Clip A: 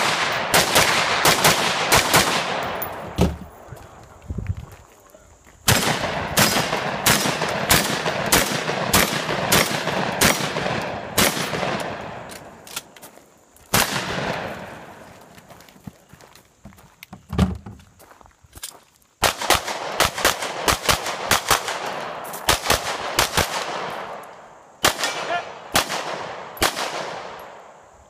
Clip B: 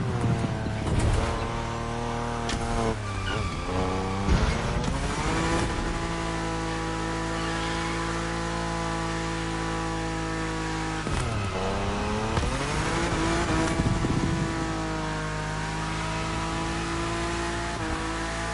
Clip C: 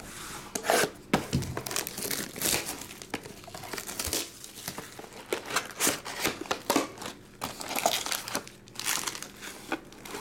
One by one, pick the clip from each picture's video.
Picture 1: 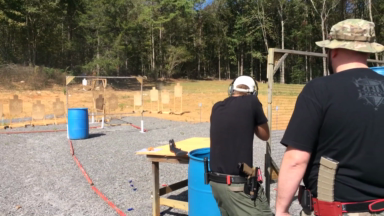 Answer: A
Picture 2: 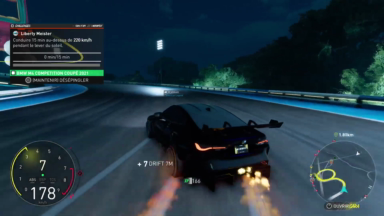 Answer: B